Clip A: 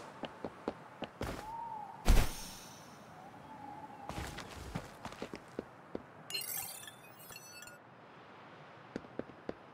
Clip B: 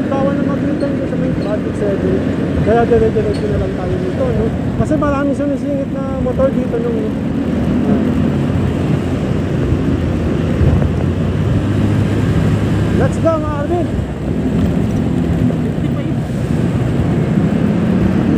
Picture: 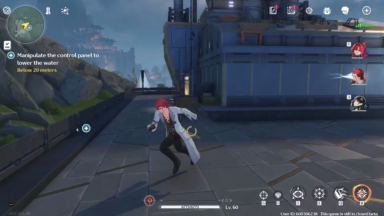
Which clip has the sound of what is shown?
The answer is A